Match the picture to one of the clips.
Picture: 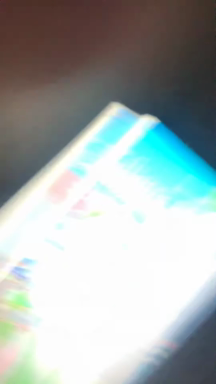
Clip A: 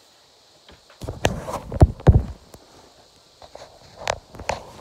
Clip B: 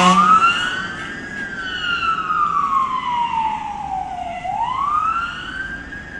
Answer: A